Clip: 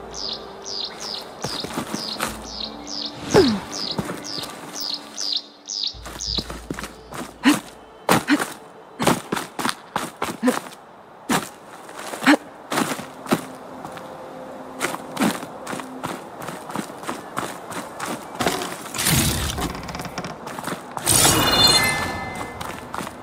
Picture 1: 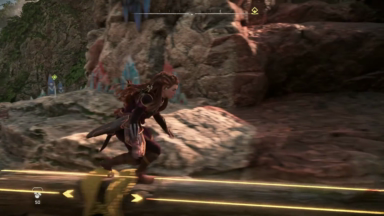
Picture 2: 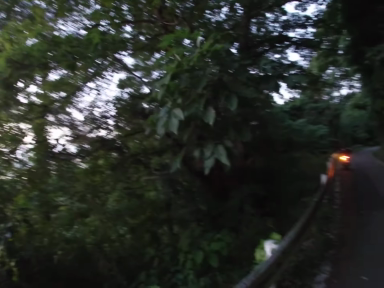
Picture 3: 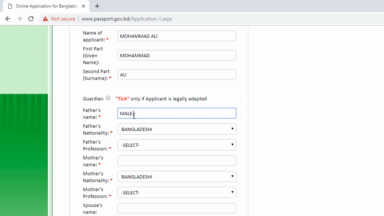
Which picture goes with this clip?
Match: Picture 1